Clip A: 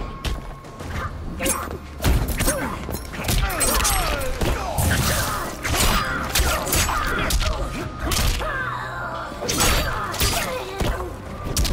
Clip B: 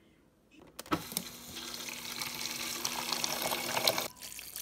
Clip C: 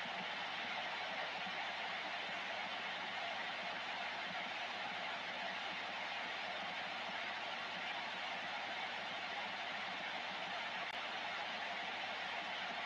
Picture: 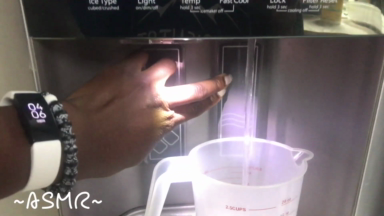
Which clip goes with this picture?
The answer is B